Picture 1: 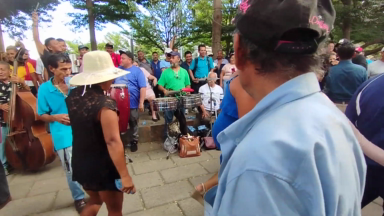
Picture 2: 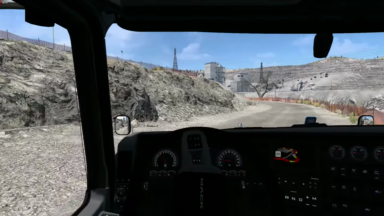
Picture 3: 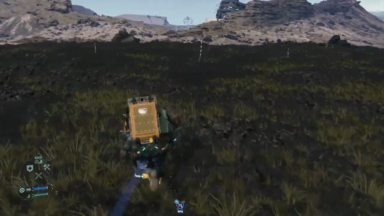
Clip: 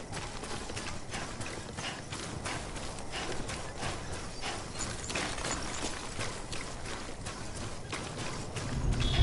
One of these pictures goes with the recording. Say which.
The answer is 3